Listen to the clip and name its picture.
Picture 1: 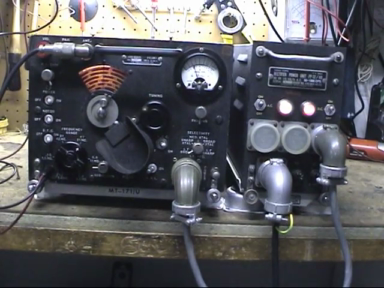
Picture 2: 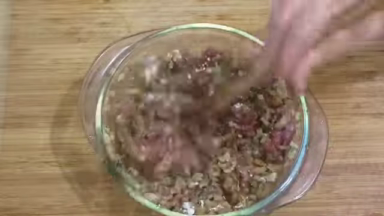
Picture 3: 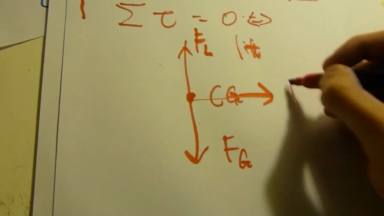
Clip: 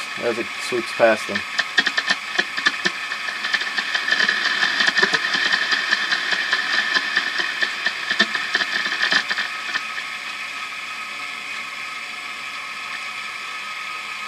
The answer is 1